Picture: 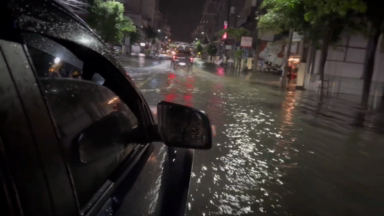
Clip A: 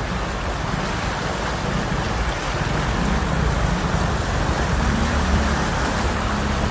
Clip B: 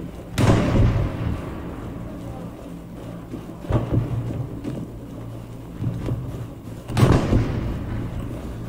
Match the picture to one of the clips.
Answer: A